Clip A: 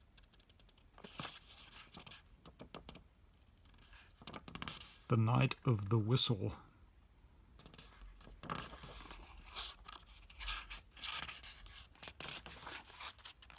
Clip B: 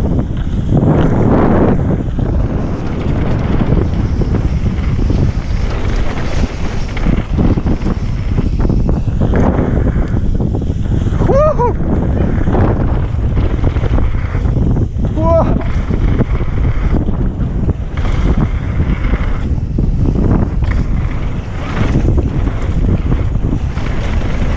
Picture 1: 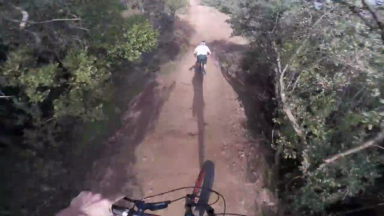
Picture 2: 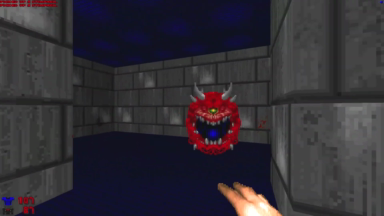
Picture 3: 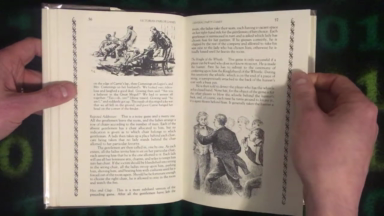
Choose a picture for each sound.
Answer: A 3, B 1